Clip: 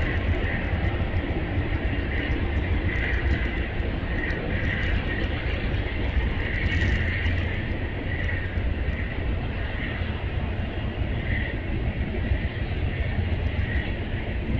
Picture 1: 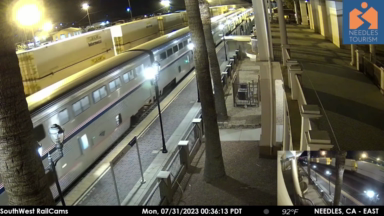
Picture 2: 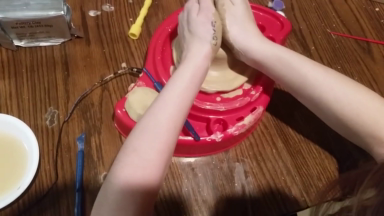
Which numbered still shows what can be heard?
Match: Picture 1